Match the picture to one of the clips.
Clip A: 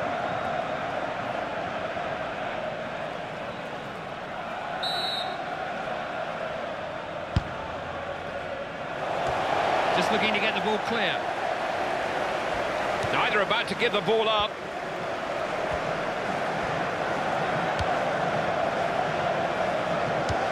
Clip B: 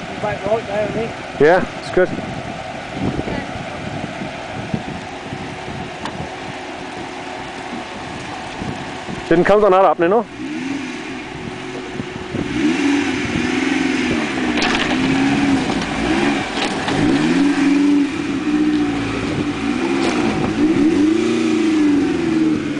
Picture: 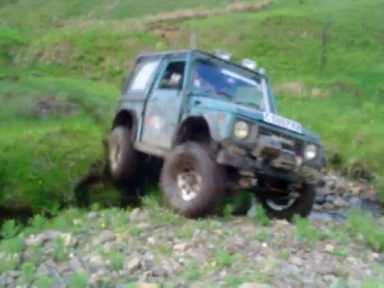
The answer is B